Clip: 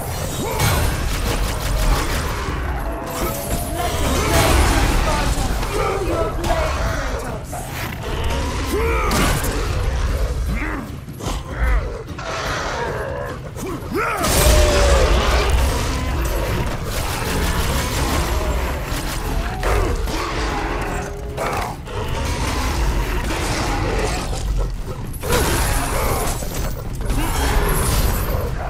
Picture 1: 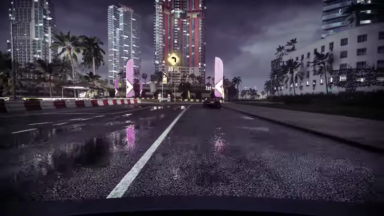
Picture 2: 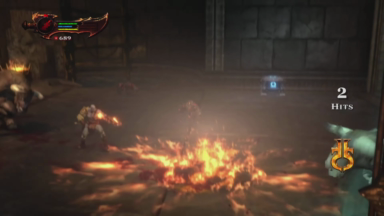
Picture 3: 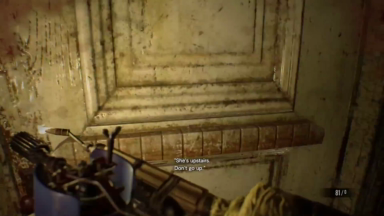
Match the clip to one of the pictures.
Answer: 2